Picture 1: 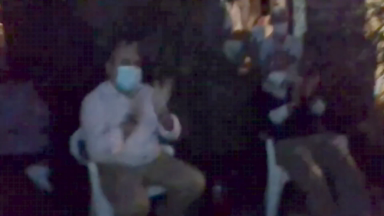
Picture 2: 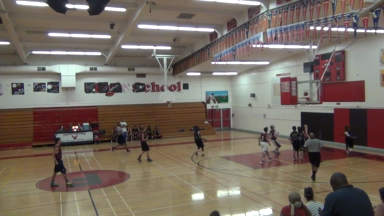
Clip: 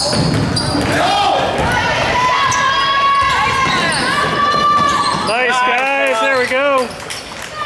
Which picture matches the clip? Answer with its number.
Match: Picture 2